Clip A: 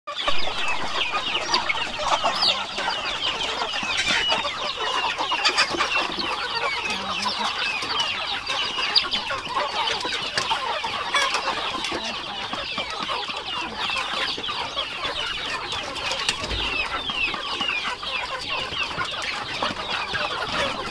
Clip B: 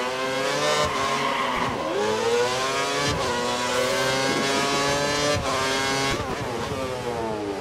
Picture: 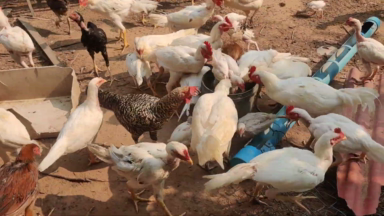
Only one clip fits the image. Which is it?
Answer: A